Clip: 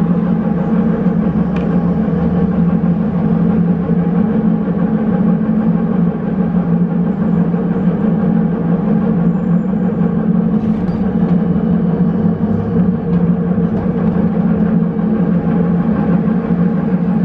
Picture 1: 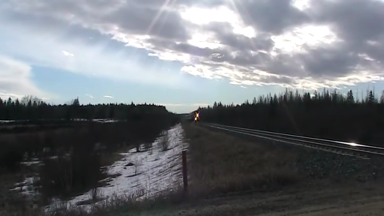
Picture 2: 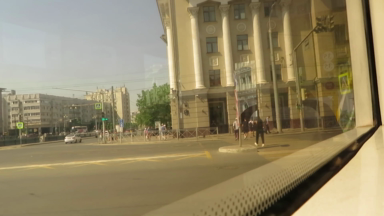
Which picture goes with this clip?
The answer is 2